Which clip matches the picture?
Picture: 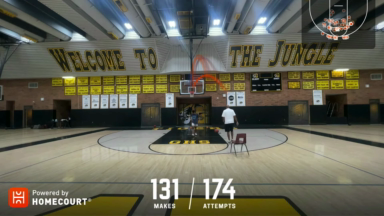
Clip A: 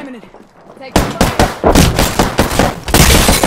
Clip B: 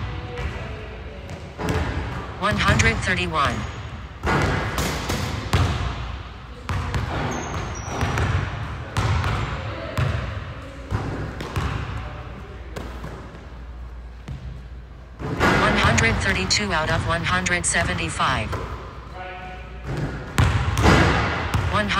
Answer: B